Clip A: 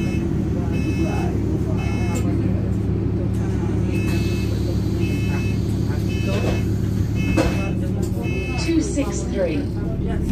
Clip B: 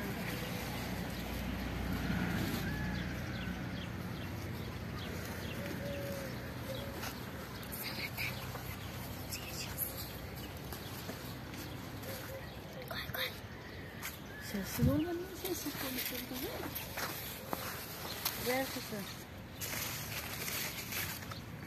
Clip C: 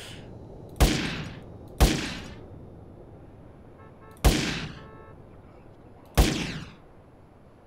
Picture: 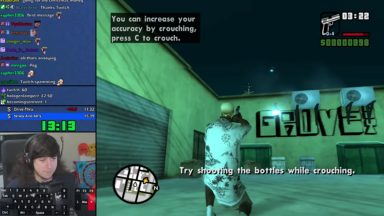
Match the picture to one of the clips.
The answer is C